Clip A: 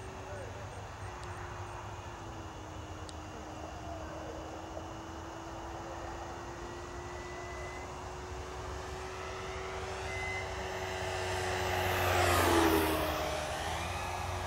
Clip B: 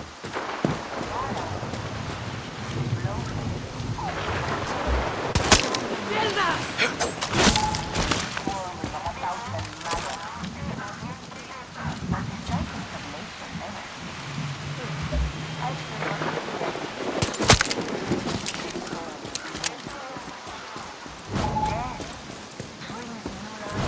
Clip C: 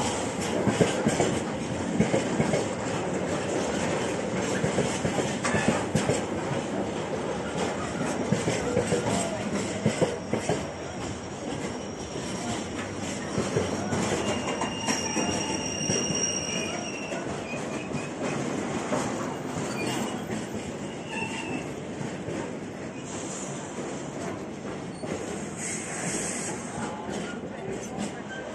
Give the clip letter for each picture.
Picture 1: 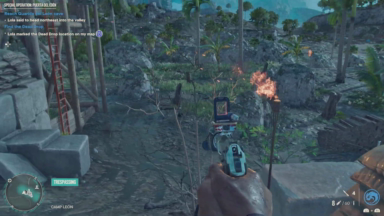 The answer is B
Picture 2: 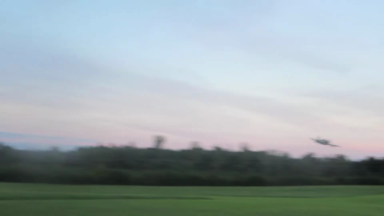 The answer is A